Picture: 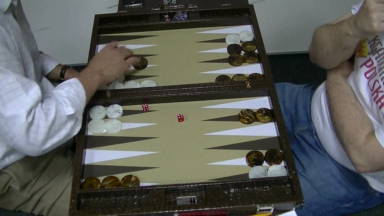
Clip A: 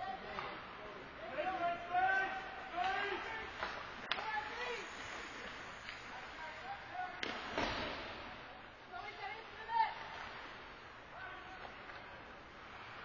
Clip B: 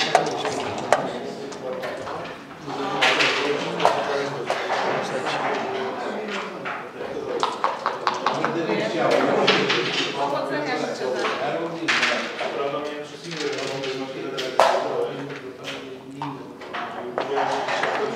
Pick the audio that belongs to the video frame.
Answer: B